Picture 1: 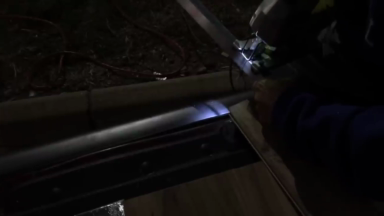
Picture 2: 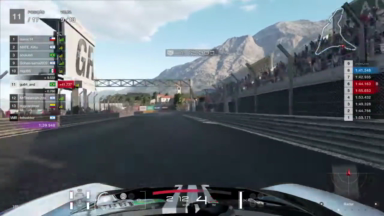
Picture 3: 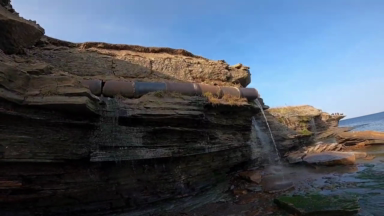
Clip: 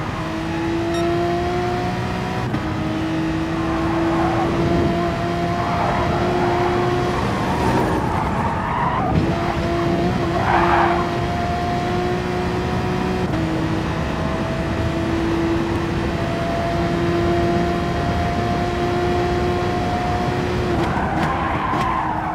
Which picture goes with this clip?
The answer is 2